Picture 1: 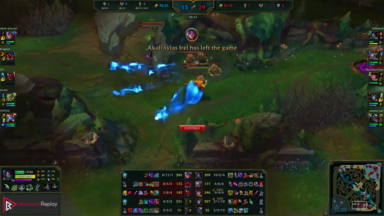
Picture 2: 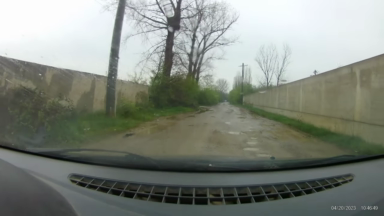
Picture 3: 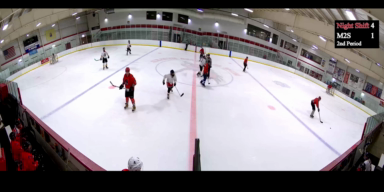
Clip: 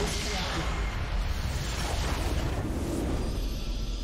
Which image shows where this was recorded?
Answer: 1